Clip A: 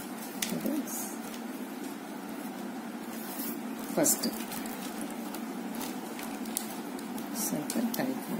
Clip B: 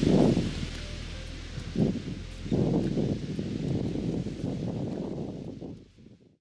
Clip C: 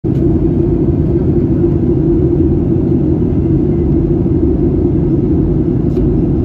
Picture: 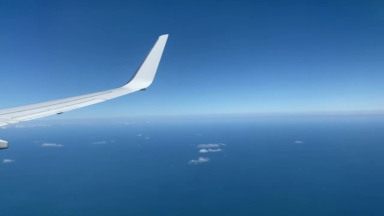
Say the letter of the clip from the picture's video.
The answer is C